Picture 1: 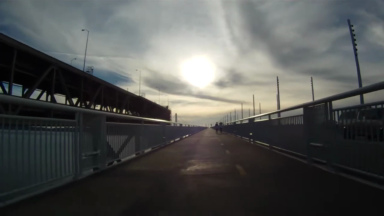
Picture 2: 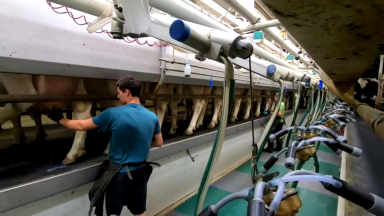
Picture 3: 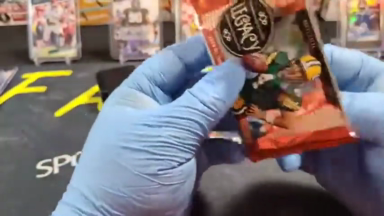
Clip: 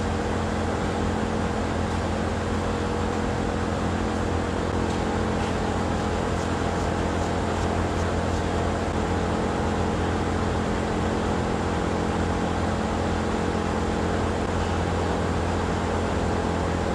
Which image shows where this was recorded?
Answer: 2